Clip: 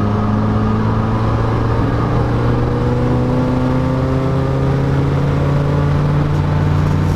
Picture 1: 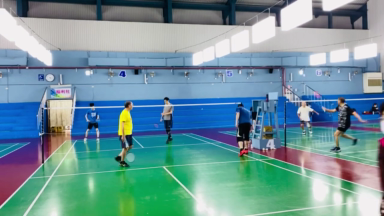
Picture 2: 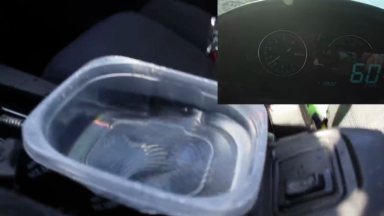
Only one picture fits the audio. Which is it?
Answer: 2